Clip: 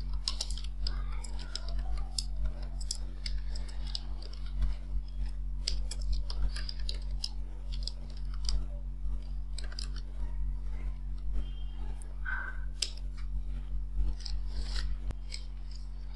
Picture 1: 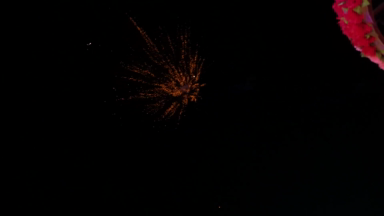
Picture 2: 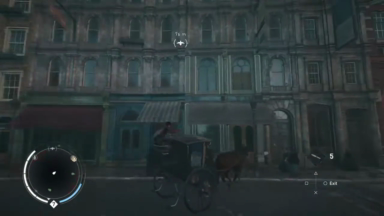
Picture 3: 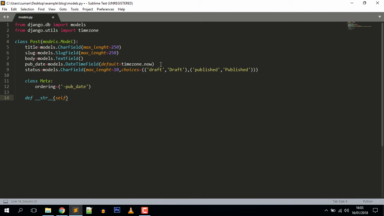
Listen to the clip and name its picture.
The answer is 3